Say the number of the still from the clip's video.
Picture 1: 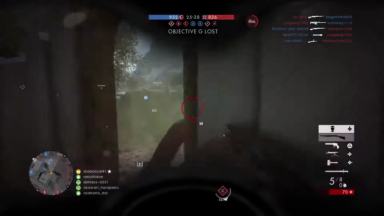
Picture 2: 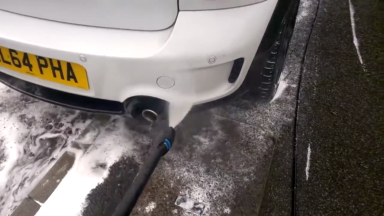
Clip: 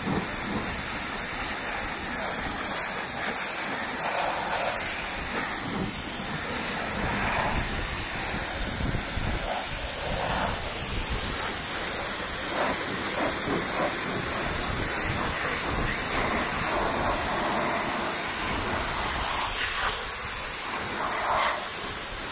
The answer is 2